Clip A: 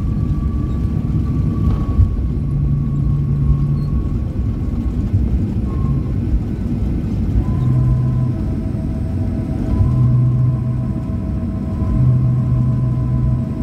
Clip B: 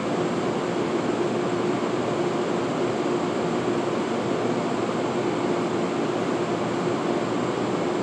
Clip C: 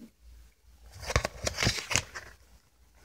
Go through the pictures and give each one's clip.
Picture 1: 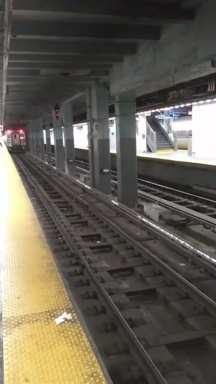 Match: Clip B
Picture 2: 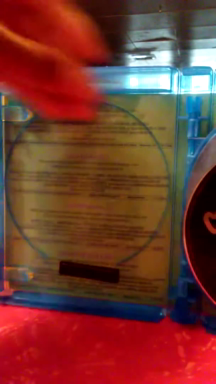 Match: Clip C